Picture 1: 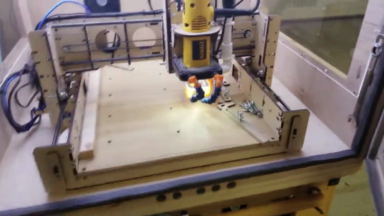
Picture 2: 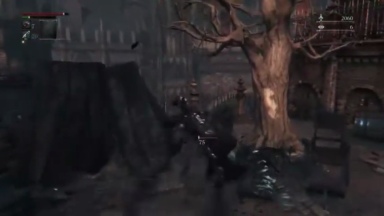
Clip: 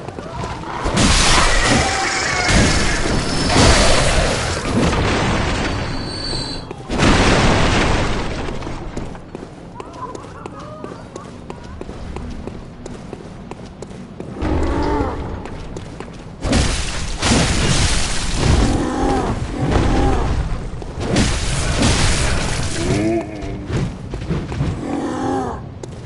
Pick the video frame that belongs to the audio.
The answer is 2